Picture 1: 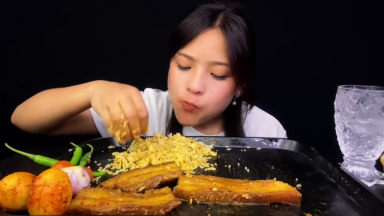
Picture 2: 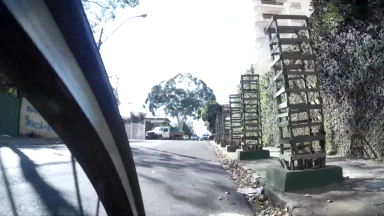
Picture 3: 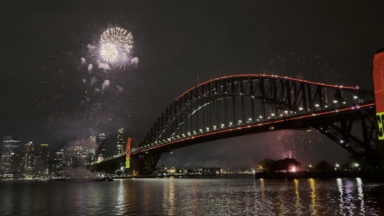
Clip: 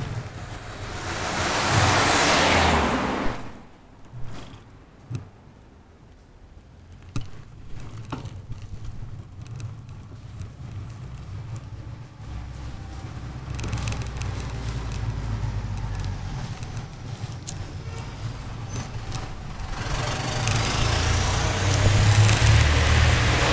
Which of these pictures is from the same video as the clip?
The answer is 2